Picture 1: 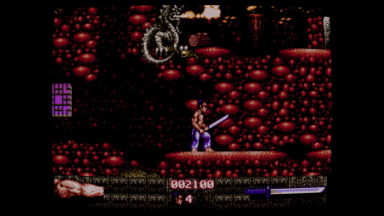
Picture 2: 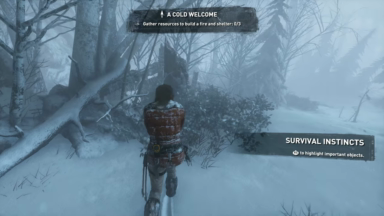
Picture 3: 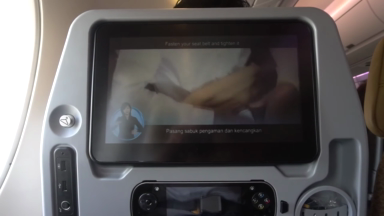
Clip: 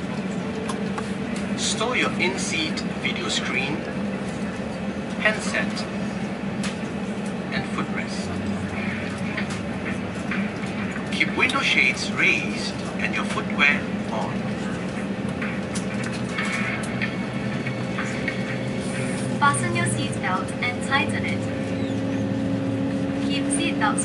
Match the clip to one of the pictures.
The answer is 3